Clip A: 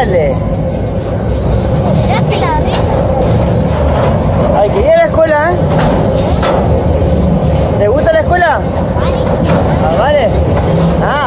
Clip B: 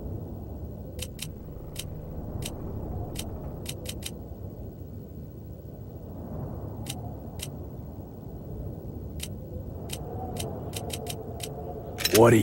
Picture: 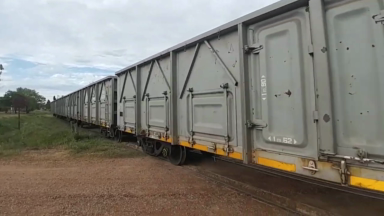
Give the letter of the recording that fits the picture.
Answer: A